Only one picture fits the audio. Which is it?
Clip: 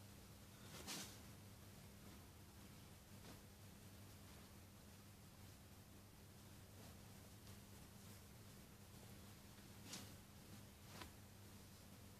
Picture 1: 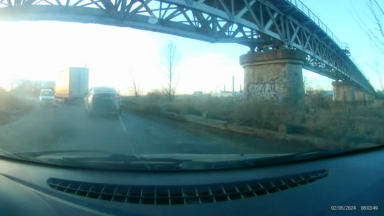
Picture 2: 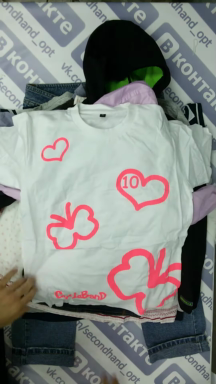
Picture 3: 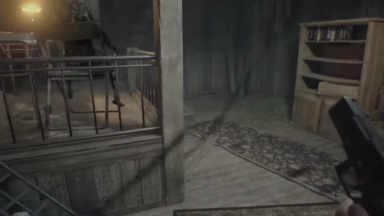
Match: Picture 2